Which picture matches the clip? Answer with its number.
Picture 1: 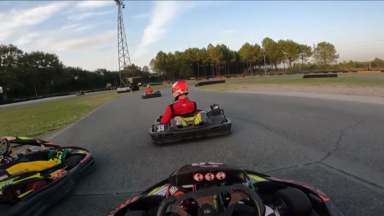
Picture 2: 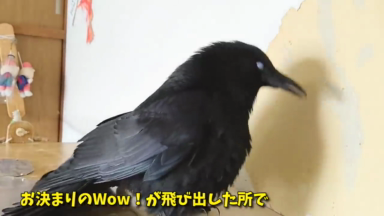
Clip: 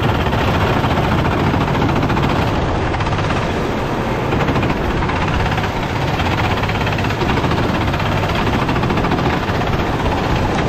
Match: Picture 1